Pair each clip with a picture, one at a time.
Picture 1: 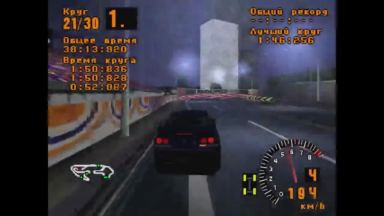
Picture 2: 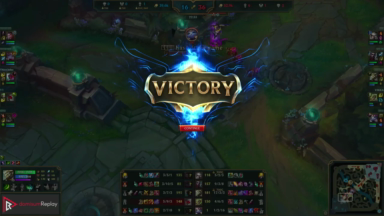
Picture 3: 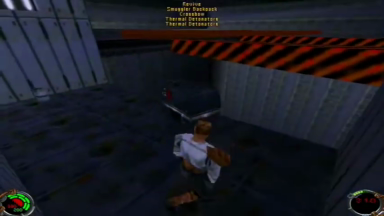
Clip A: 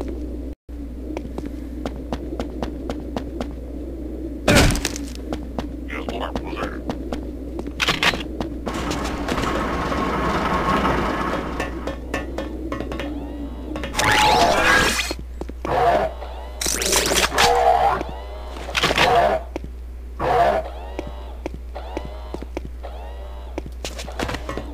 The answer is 3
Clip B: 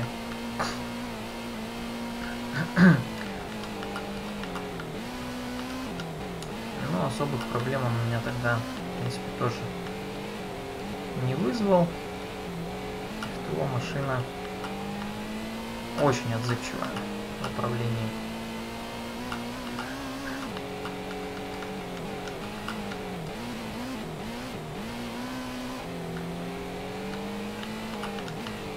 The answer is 1